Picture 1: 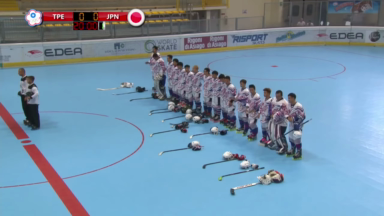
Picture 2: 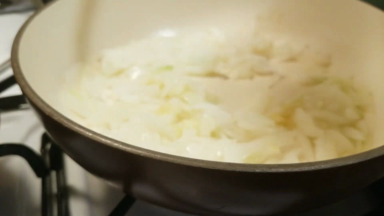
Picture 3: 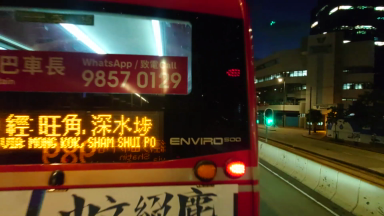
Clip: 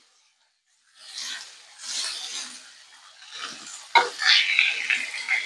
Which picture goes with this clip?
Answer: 2